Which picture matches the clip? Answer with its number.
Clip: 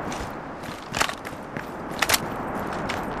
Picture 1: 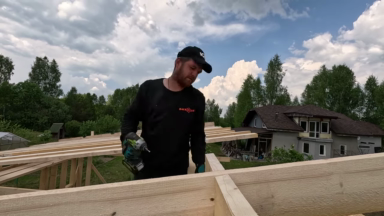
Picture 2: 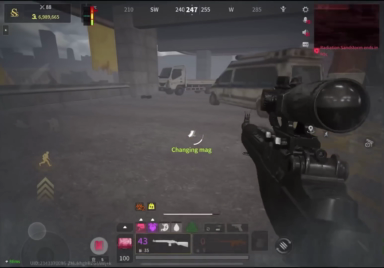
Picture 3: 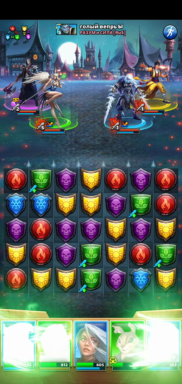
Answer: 2